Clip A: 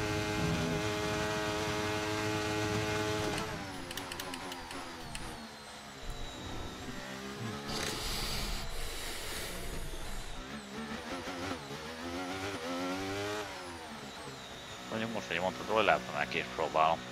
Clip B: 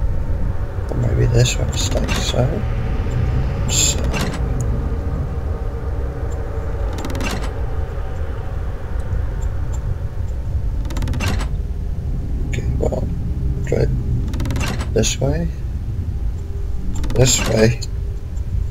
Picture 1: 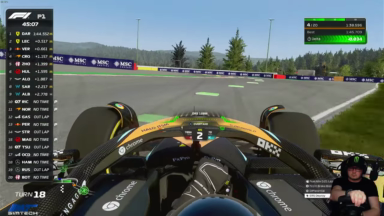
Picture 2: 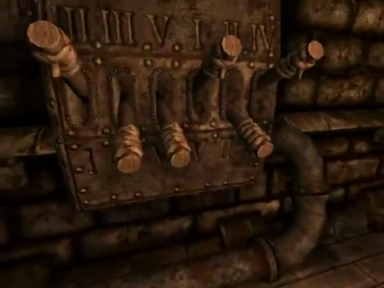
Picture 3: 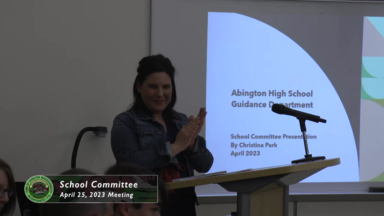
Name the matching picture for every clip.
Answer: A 1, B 2